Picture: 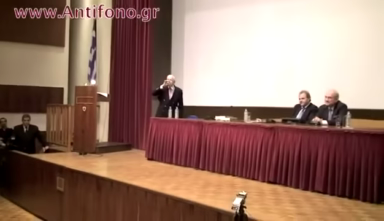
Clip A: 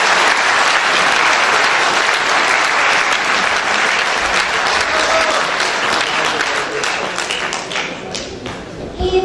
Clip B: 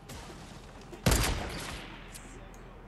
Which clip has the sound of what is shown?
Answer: A